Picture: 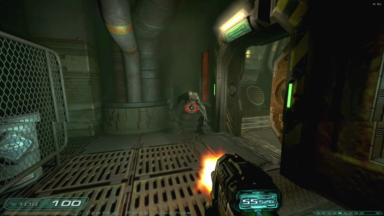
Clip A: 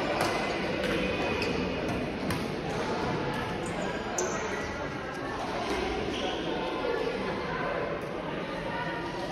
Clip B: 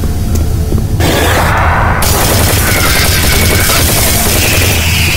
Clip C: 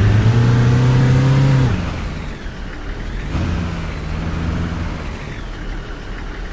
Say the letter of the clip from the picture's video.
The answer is B